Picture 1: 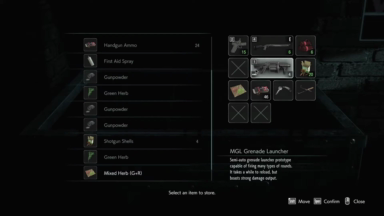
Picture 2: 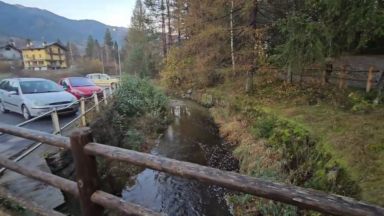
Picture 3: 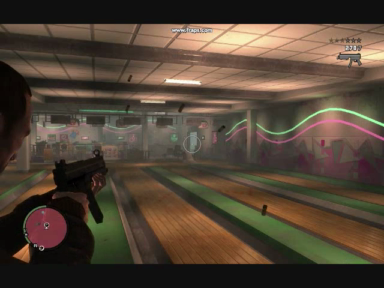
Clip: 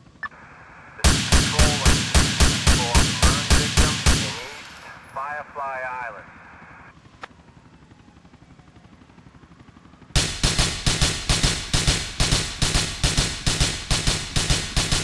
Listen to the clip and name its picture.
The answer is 3